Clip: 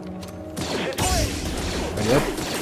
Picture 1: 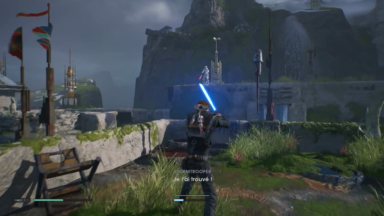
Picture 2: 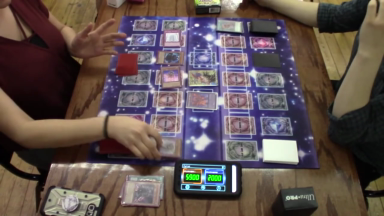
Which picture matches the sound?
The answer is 1